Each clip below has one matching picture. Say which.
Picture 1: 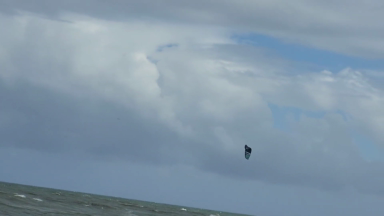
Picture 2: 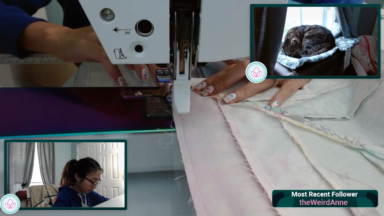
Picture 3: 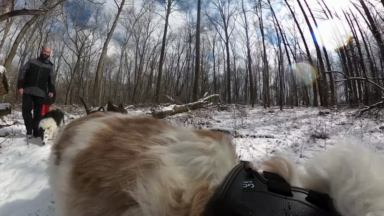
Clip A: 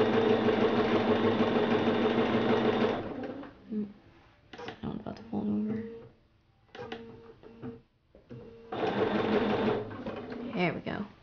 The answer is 2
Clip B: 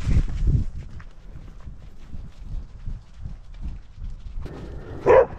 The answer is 3